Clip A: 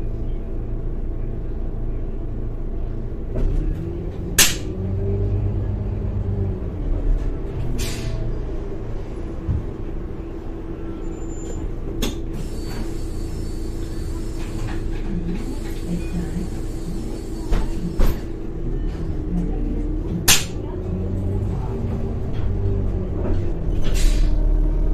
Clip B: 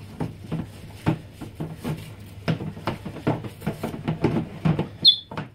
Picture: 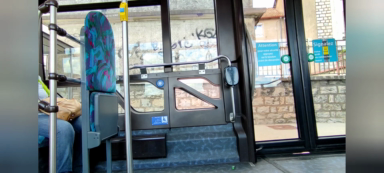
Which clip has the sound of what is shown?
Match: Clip A